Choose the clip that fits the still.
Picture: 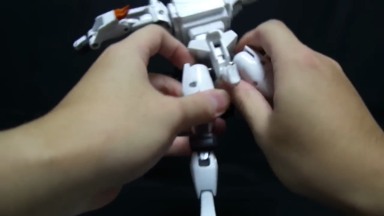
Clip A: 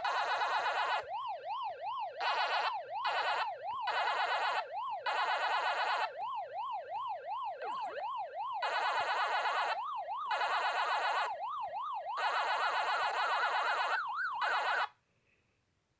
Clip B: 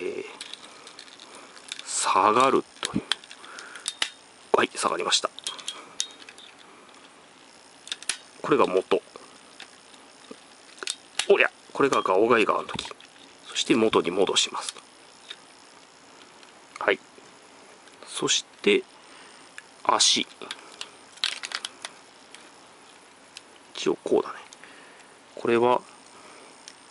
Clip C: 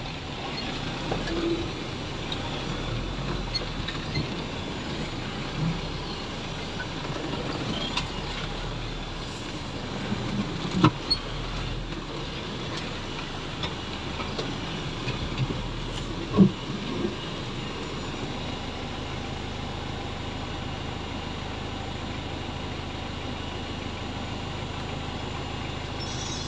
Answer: B